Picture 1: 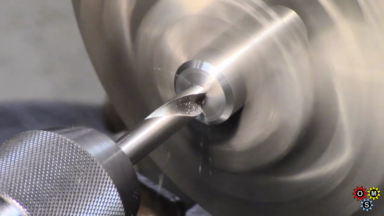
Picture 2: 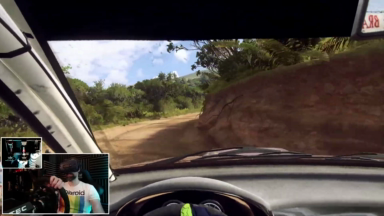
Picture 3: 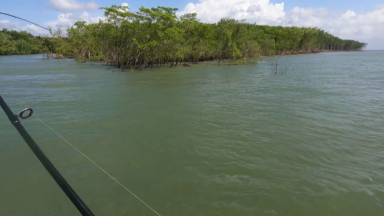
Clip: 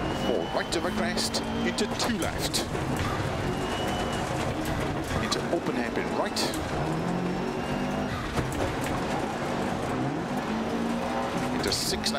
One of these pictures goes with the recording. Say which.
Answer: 2